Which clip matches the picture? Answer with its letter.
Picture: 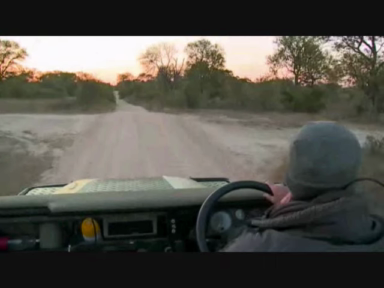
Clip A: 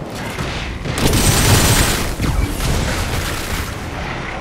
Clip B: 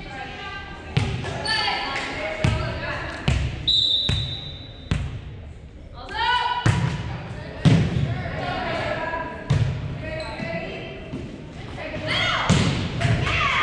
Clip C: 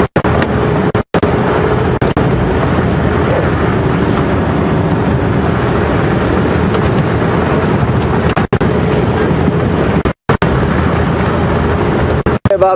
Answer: C